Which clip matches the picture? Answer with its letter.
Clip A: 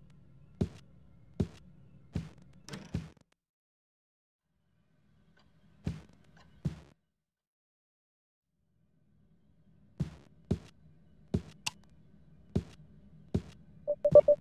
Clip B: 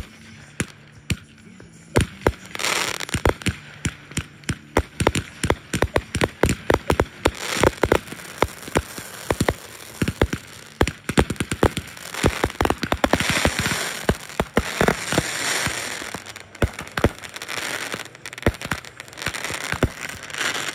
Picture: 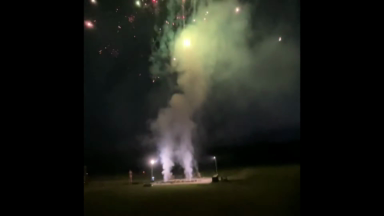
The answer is B